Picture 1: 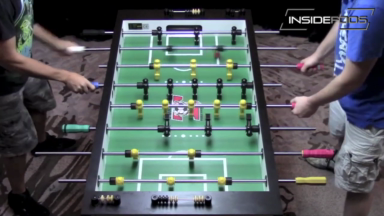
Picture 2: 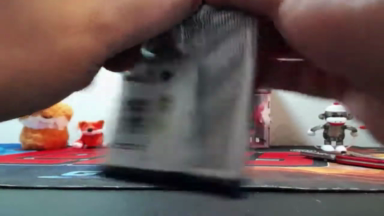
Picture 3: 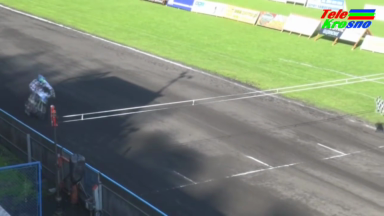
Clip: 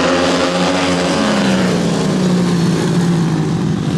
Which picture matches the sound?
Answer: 3